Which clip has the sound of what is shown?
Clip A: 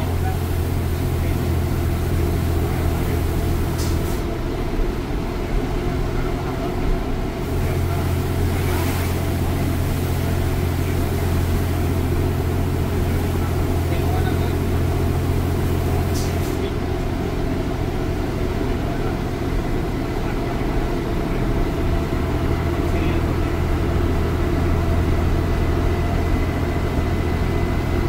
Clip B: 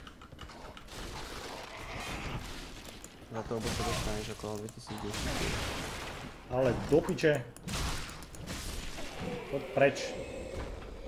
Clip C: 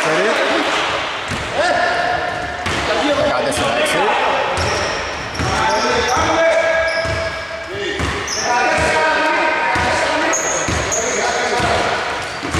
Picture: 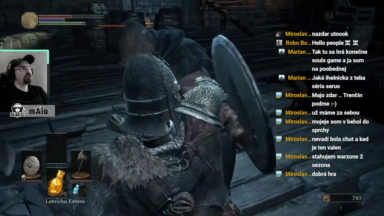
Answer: B